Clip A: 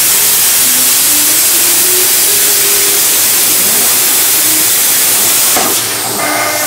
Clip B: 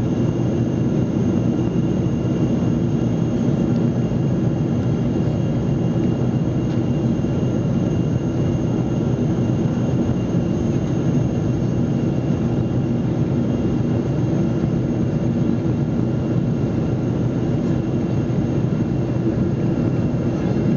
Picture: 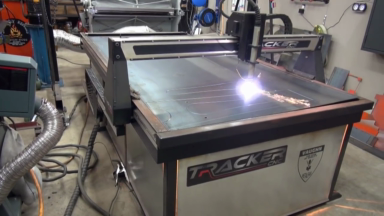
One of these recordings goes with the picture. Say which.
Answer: A